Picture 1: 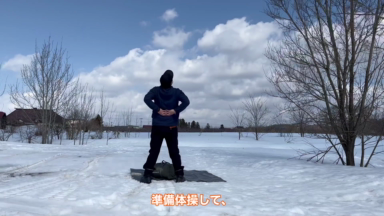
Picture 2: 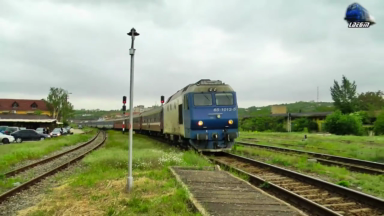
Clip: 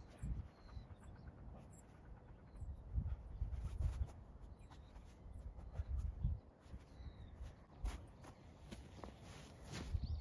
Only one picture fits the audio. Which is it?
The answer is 1